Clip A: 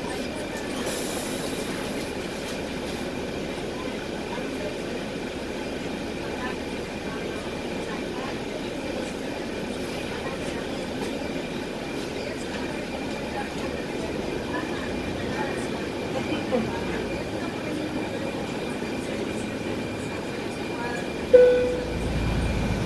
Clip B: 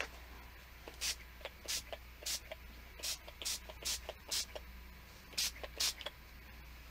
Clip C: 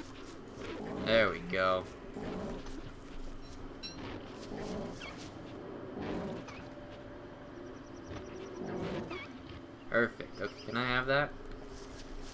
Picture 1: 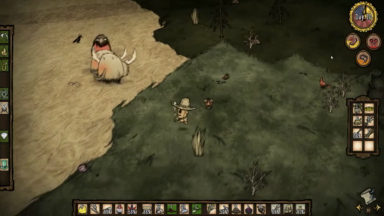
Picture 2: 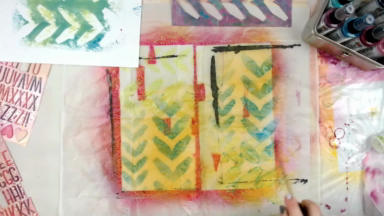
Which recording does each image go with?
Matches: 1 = C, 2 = B